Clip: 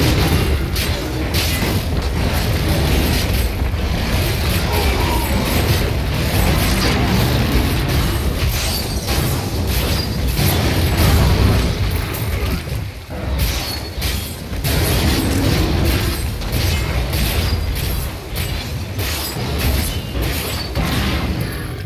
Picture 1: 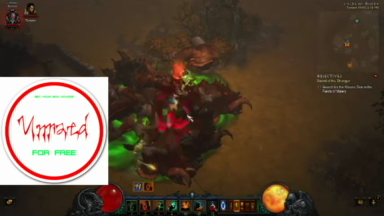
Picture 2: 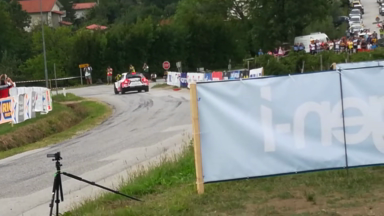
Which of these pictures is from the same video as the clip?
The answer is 1